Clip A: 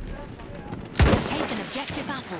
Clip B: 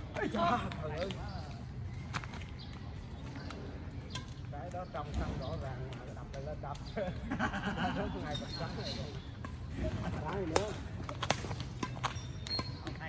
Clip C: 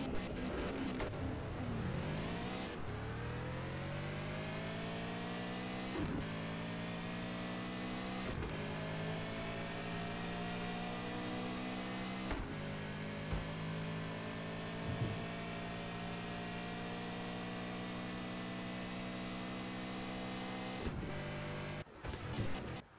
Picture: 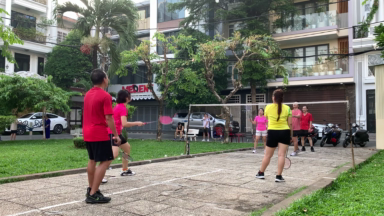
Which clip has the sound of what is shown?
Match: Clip B